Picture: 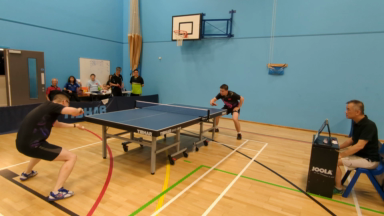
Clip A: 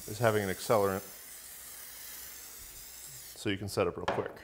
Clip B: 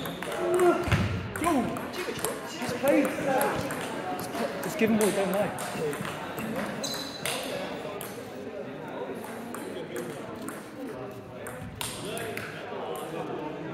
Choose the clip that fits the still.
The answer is B